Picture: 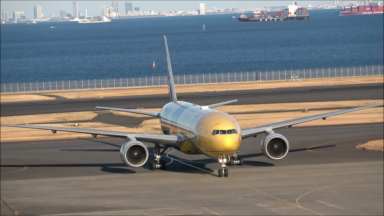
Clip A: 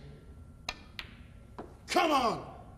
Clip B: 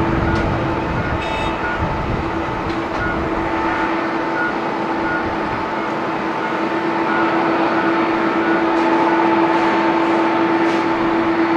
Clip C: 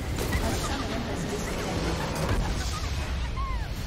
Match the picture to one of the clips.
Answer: B